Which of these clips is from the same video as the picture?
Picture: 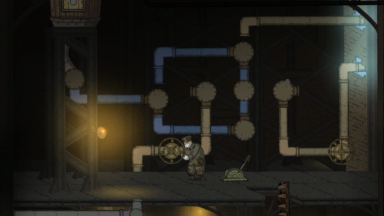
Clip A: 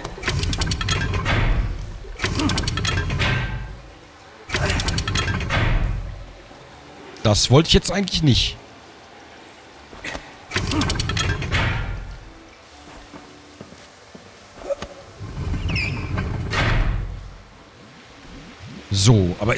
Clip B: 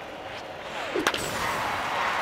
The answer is A